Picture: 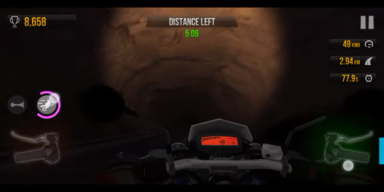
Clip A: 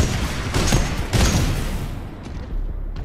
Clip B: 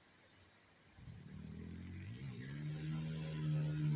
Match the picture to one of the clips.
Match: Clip B